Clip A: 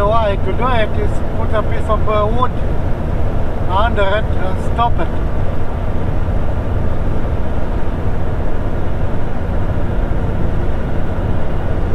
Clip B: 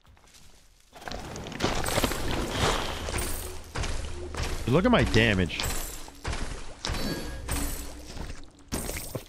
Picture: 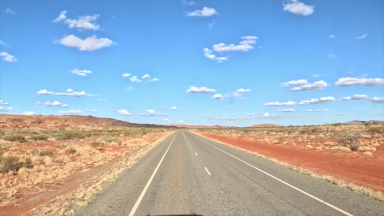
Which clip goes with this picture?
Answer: A